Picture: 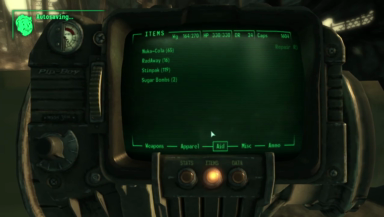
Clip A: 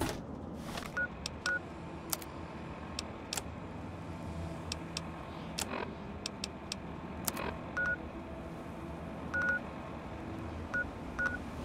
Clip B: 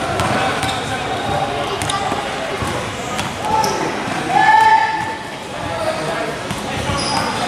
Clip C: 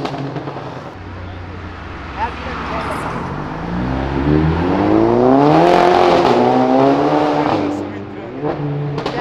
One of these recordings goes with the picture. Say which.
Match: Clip A